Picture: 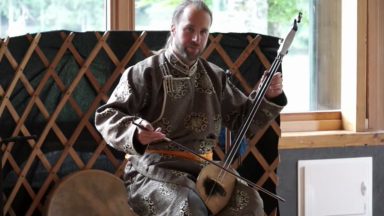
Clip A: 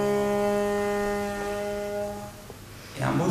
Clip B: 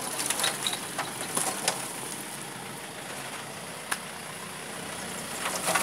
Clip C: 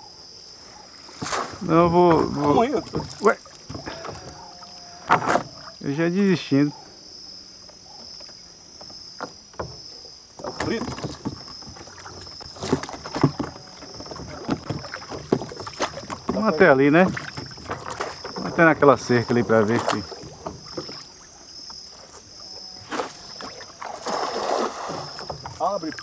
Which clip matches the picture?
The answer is A